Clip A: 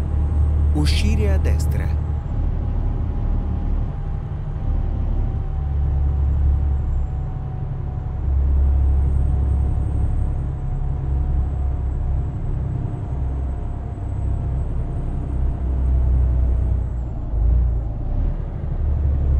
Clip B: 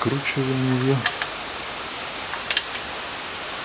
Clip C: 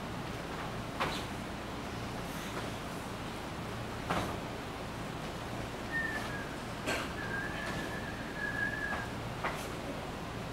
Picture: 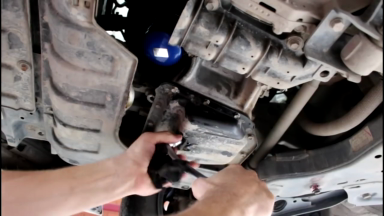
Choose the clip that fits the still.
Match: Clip B